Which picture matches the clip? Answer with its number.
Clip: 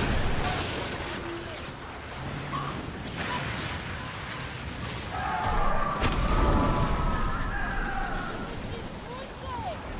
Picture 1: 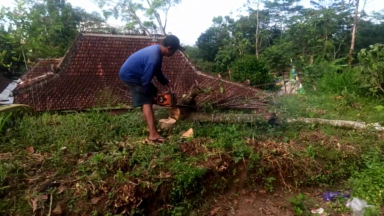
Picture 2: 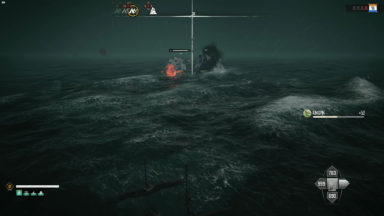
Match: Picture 2